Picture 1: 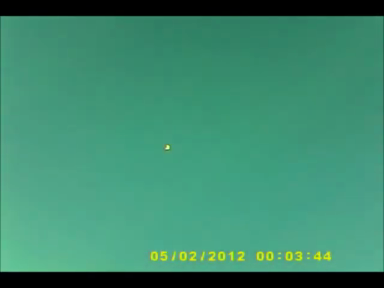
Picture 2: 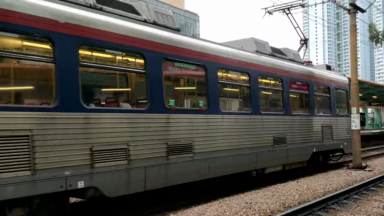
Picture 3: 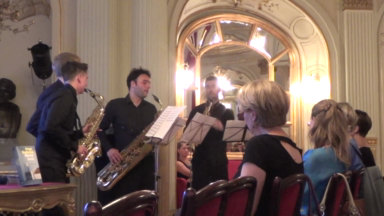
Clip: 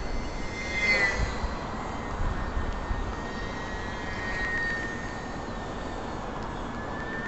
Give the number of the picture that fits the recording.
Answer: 1